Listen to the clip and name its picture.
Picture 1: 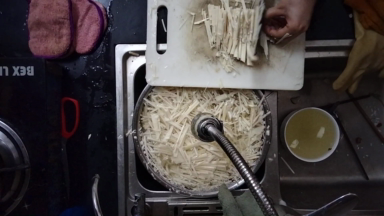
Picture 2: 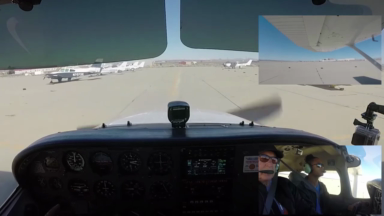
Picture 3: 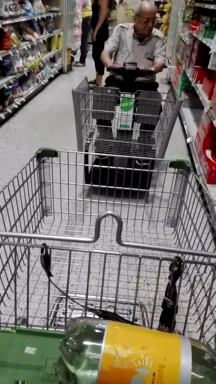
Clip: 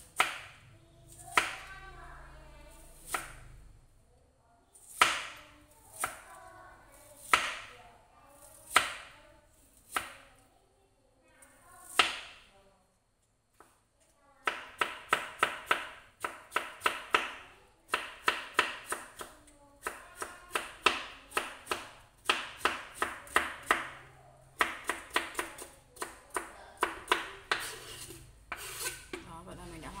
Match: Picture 1